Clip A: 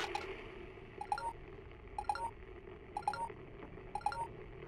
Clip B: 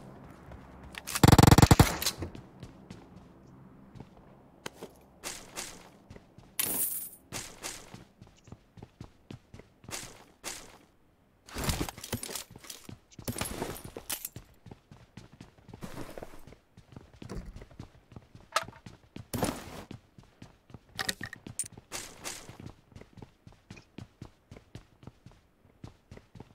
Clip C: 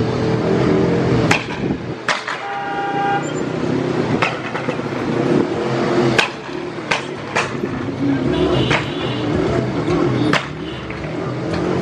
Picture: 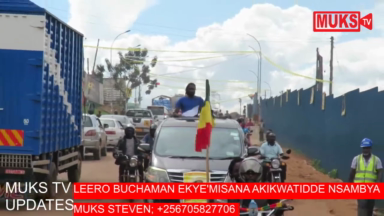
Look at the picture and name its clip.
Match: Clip C